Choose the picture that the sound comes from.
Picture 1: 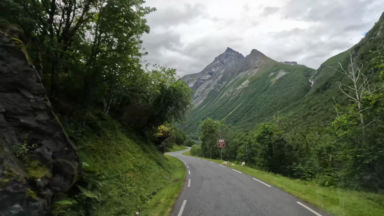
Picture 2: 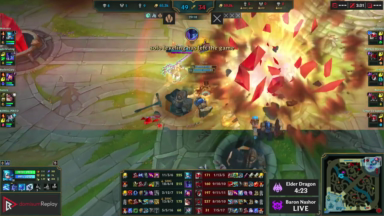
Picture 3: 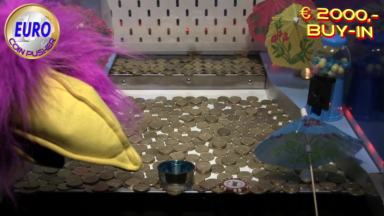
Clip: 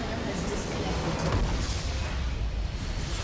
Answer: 2